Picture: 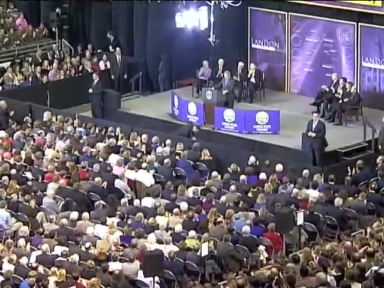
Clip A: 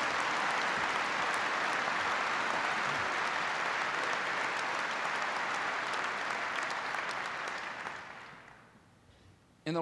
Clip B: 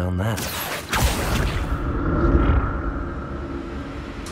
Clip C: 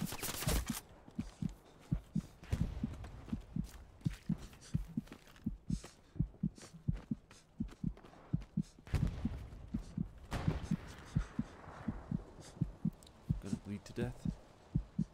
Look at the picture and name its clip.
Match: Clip A